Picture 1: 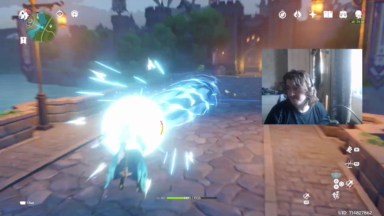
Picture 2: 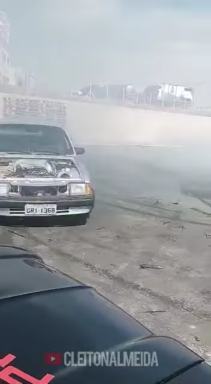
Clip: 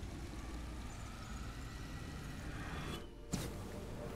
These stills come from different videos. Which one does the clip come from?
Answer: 1